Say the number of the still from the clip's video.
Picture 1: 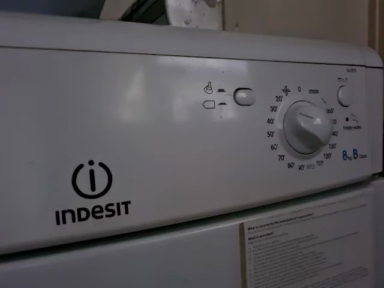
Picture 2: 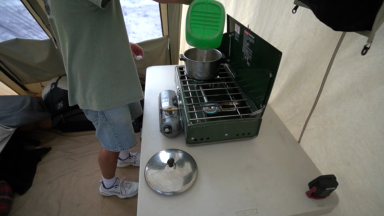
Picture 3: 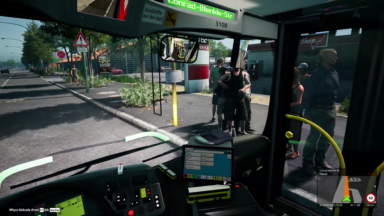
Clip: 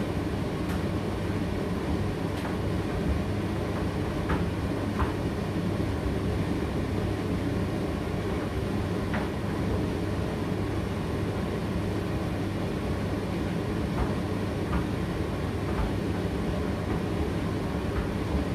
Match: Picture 1